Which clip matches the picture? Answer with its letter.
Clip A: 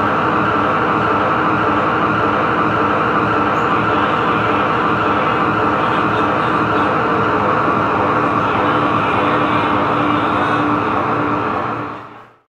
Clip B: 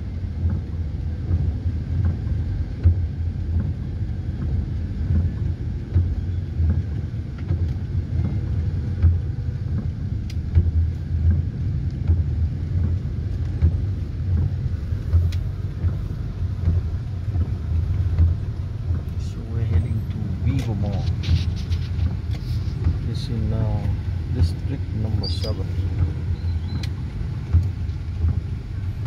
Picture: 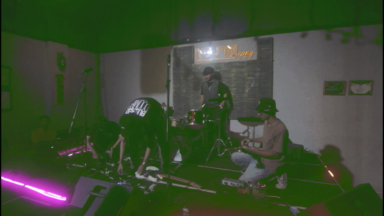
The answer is A